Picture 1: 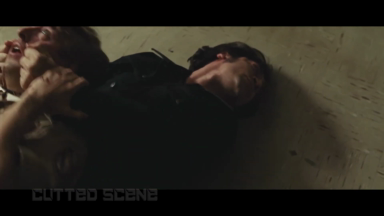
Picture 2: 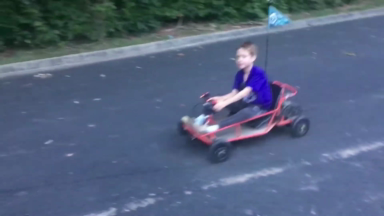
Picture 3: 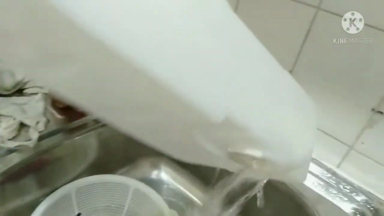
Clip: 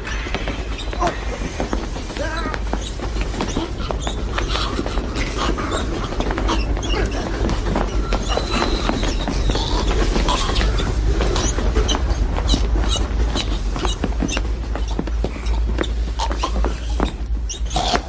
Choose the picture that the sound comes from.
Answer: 1